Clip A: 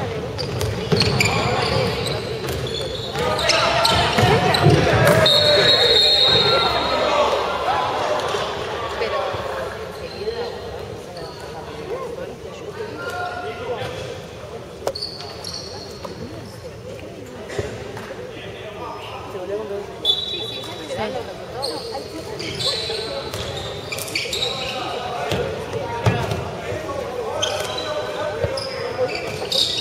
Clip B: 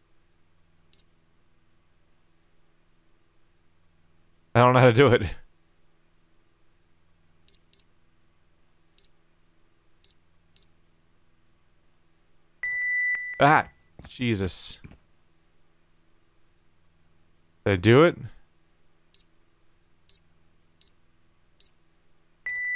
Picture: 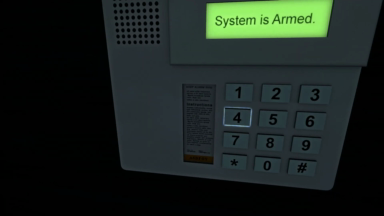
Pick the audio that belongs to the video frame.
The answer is B